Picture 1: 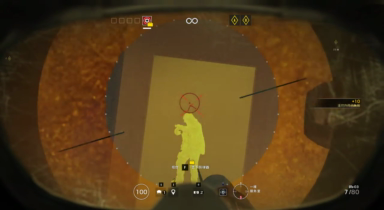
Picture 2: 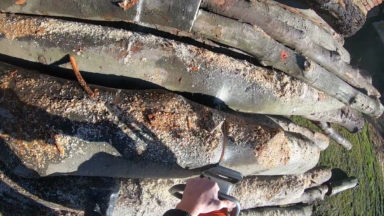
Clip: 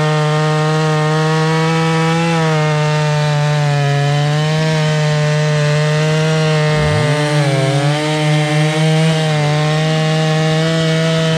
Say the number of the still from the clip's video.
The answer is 2